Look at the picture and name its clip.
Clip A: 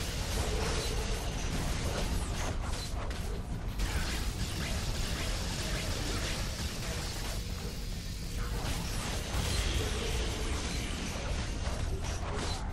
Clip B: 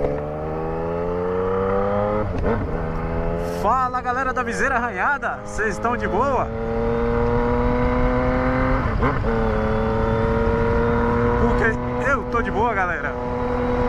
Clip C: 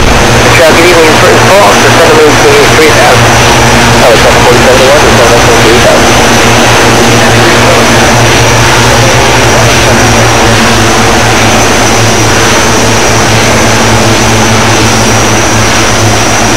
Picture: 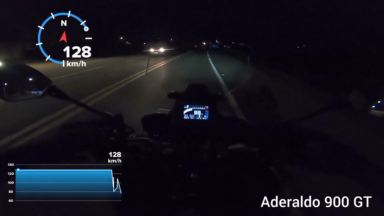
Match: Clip B